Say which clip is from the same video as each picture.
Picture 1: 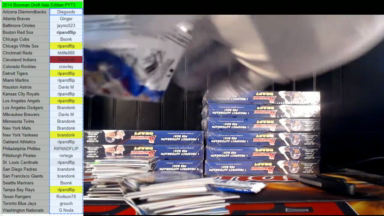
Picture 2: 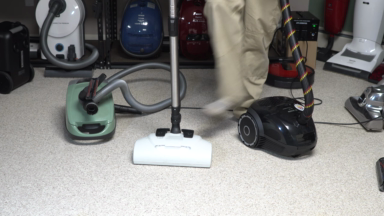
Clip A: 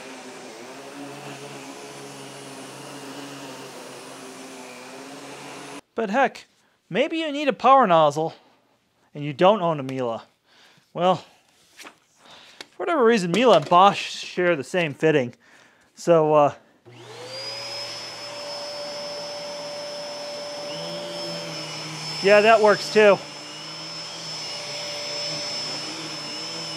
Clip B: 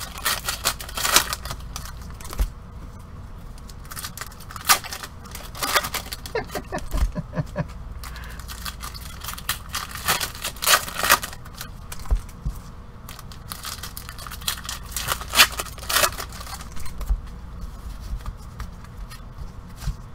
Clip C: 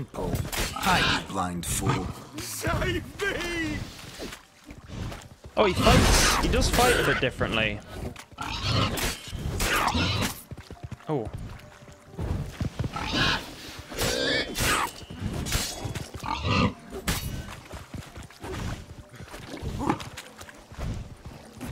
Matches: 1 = B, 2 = A